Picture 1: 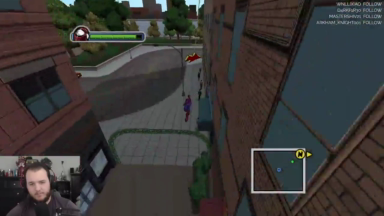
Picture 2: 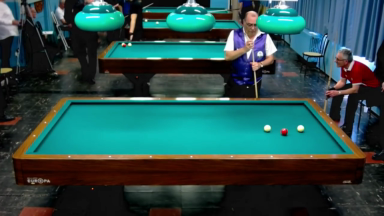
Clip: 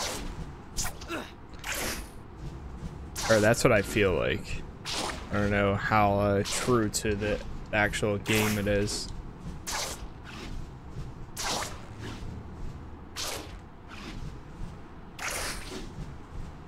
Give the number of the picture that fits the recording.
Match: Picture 1